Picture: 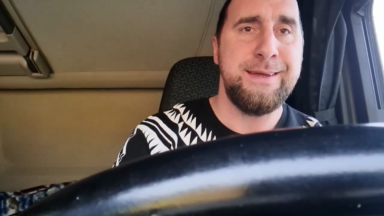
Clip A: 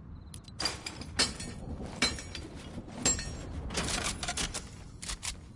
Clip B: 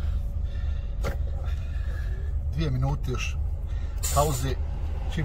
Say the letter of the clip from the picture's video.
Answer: B